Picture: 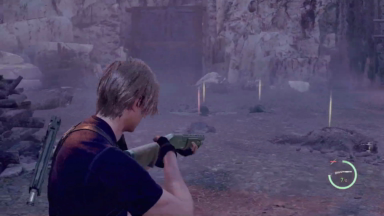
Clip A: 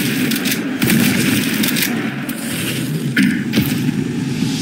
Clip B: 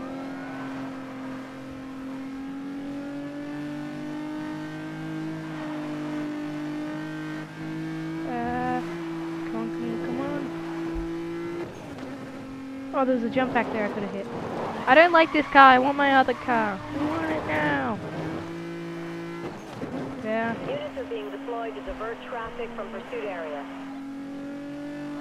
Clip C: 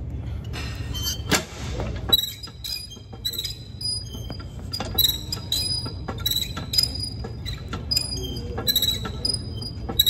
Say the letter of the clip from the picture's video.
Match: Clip A